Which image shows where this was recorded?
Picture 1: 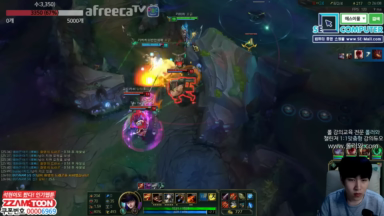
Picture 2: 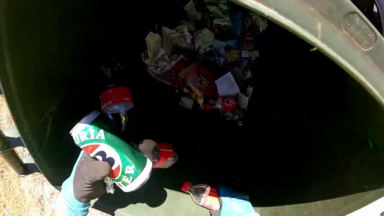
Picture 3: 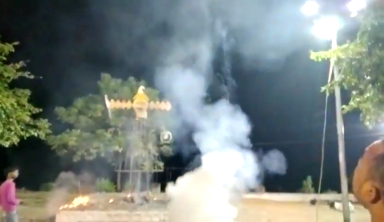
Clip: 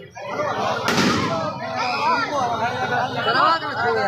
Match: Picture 3